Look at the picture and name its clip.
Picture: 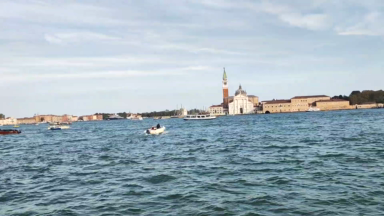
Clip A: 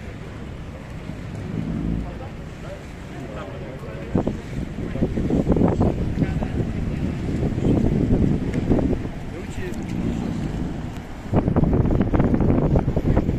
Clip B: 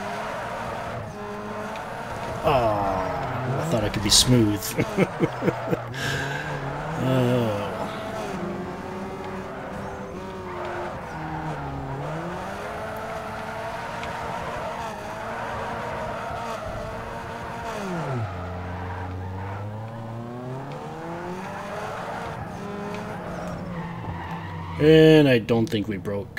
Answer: A